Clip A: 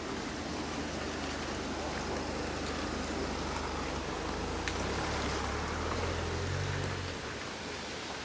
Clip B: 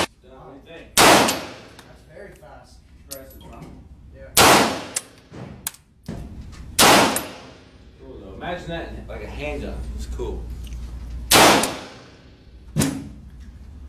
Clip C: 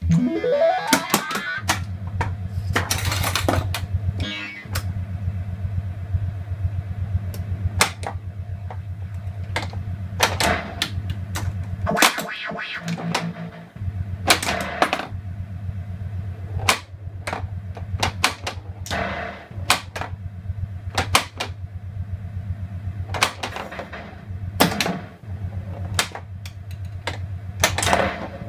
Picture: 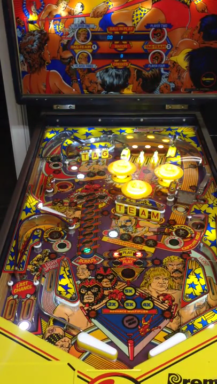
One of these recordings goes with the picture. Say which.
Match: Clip C